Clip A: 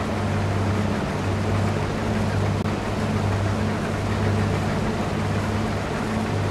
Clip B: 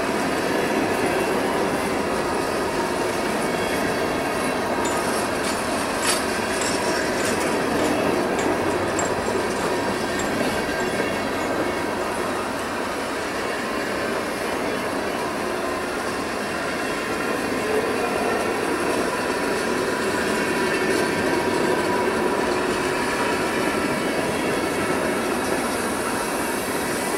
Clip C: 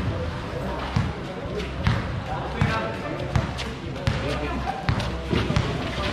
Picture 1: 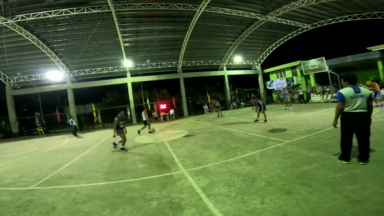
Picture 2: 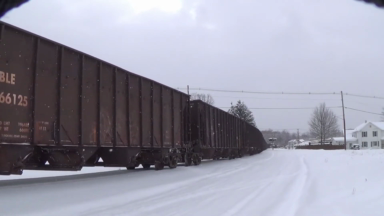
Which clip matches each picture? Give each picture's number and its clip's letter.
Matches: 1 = C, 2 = B